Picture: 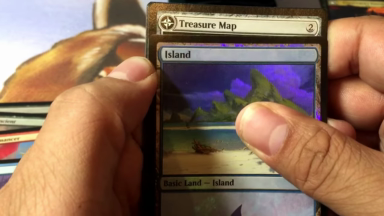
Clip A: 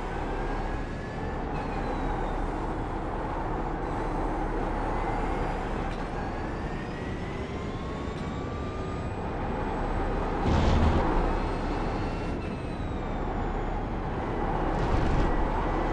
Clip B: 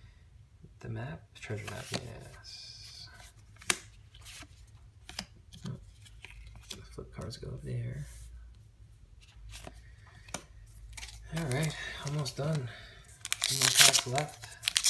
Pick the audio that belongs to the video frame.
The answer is B